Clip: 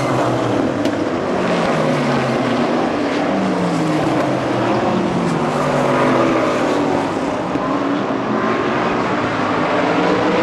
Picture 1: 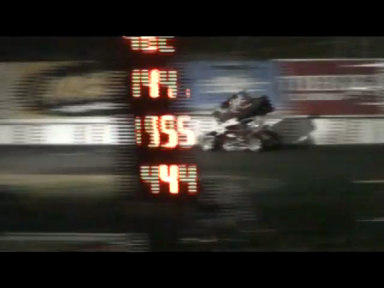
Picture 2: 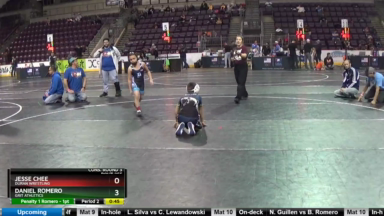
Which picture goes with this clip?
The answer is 1